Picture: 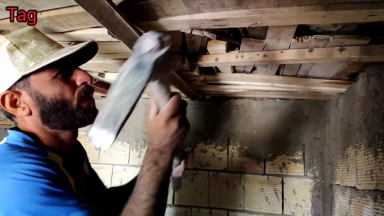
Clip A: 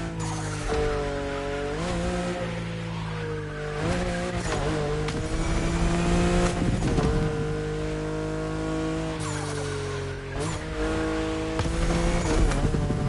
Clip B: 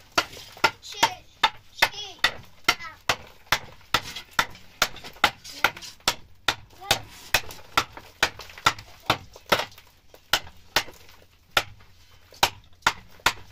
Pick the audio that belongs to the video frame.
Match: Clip B